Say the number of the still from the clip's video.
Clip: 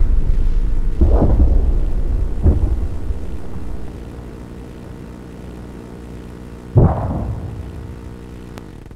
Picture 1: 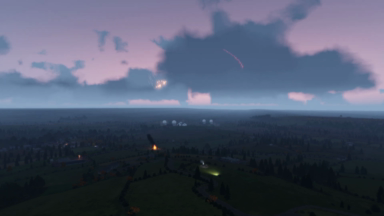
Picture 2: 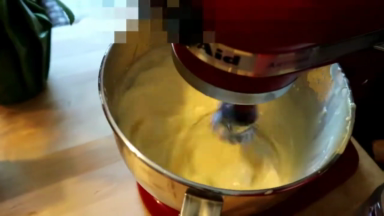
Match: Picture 1